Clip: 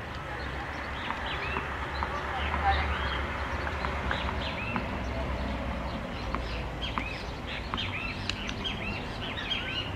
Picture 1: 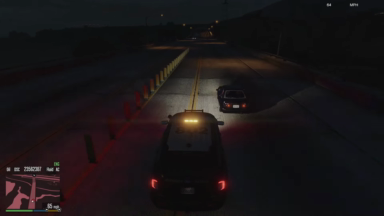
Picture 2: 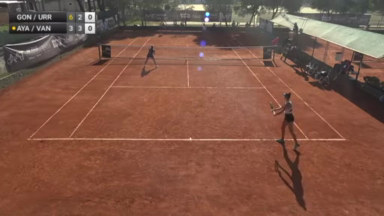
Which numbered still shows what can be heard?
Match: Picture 2